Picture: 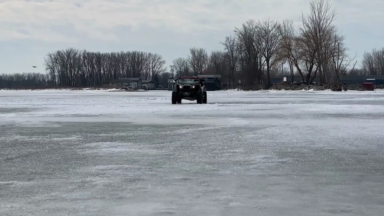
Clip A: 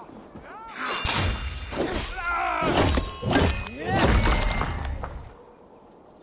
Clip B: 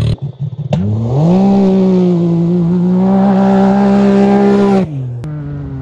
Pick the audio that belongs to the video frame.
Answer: B